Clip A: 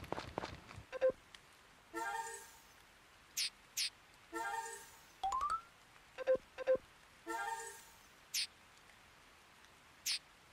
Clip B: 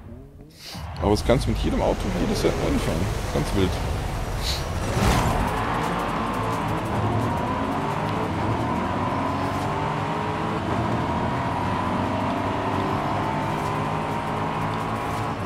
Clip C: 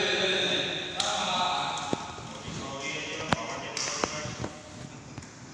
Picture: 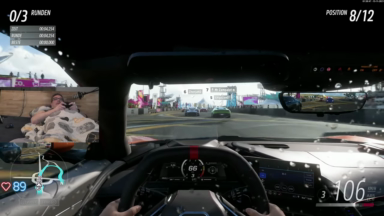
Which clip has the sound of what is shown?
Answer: B